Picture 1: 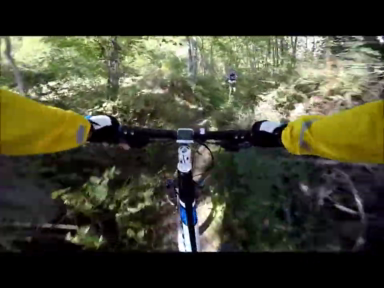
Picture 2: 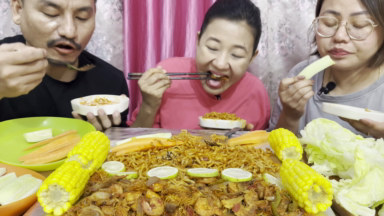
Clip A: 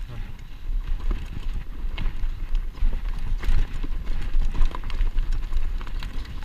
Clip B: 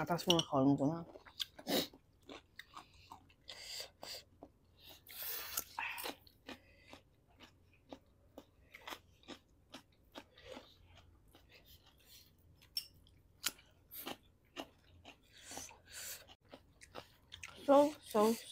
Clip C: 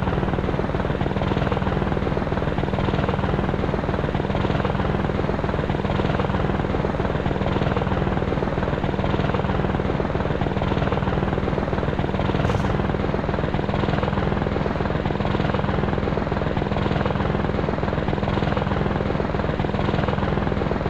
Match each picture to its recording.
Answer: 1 A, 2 B